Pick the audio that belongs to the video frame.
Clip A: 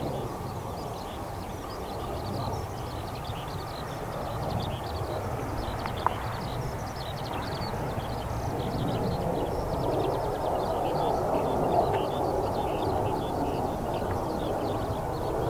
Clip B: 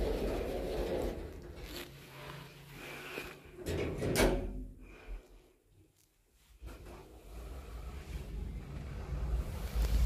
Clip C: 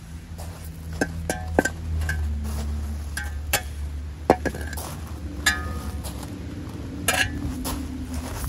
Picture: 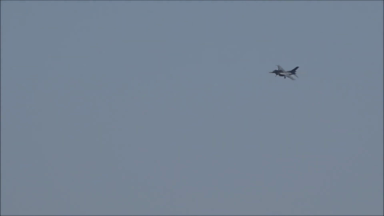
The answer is A